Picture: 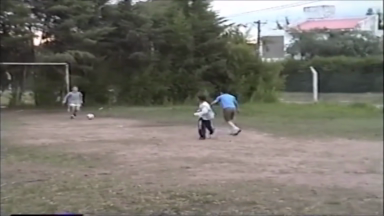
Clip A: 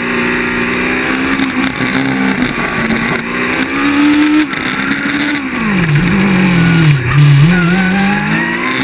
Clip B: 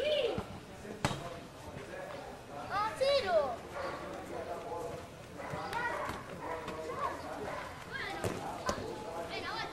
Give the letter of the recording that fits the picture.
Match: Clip B